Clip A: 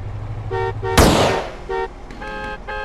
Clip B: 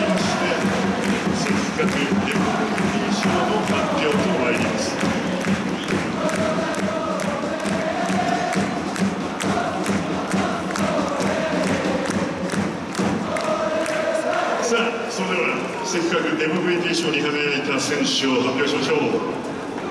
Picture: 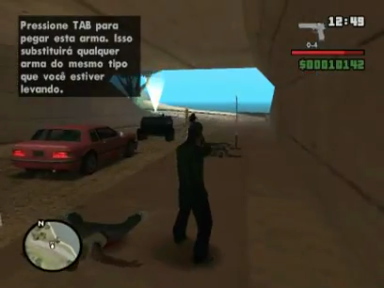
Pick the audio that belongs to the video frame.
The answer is A